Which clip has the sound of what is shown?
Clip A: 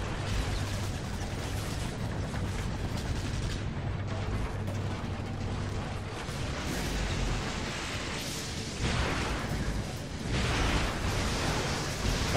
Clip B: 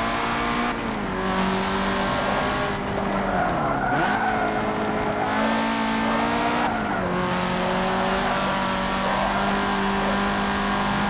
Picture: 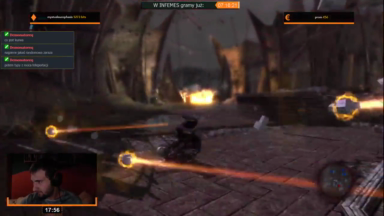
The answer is A